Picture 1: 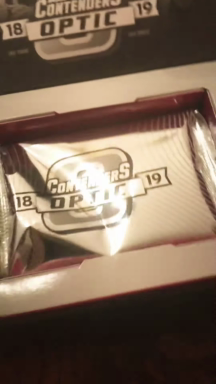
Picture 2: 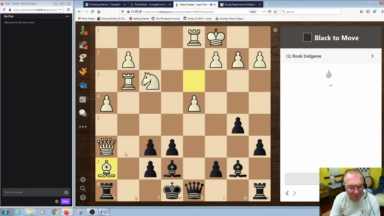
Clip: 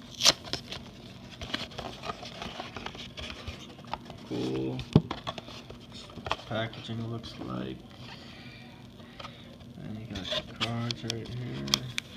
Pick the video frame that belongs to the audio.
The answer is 1